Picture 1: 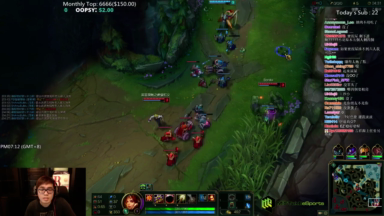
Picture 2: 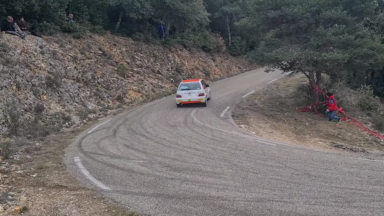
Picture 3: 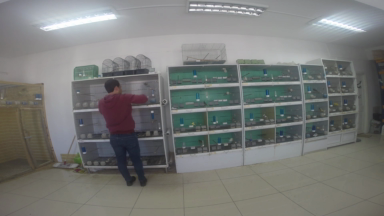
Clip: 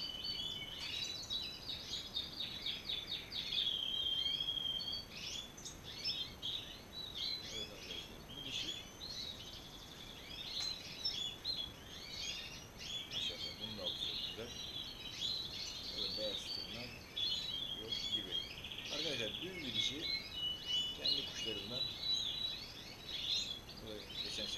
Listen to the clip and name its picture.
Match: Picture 3